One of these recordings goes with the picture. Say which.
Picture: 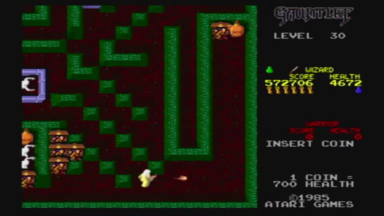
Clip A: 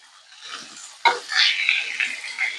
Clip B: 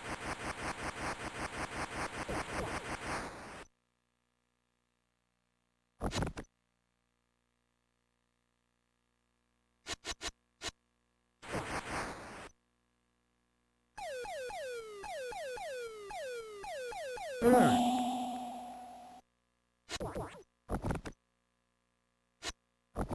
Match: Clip B